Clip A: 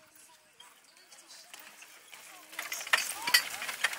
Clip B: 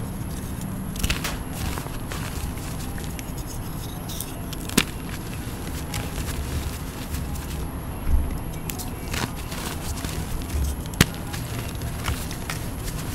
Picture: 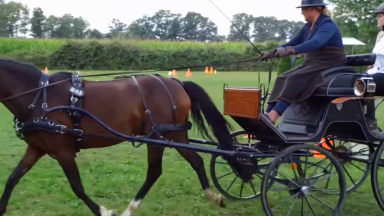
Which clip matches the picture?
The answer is A